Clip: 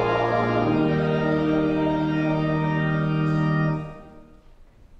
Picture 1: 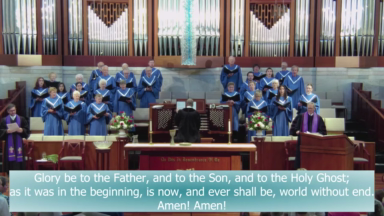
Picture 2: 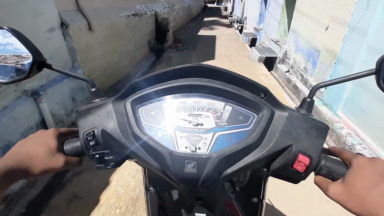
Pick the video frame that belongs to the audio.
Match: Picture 1